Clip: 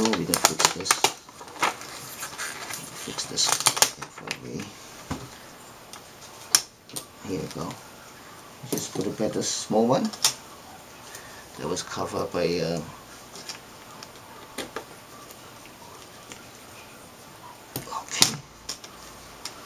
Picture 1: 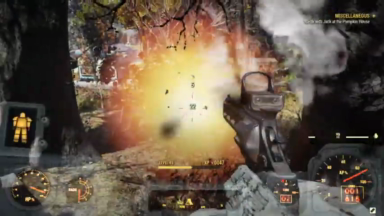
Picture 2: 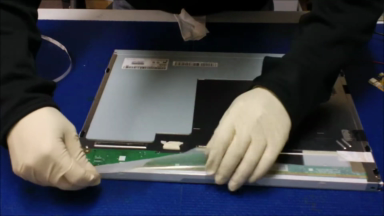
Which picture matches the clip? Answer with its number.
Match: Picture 2